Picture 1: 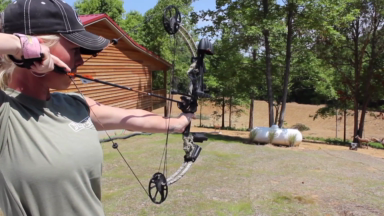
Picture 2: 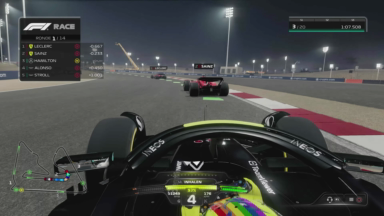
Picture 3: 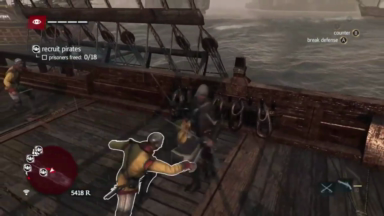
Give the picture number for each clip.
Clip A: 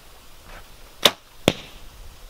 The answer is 1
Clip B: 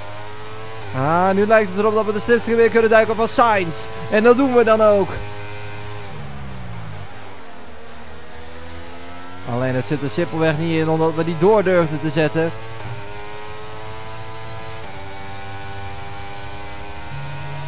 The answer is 2